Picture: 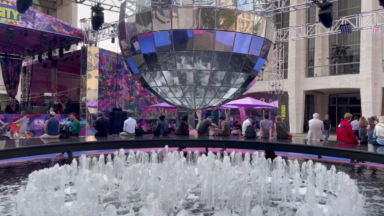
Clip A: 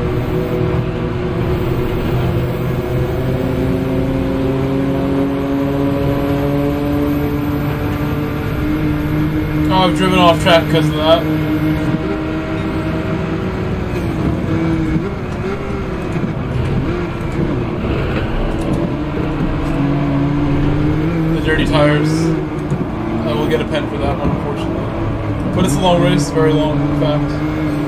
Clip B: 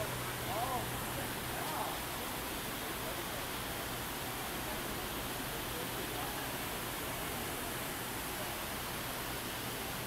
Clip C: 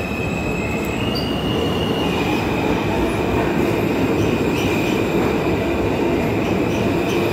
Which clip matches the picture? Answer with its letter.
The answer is B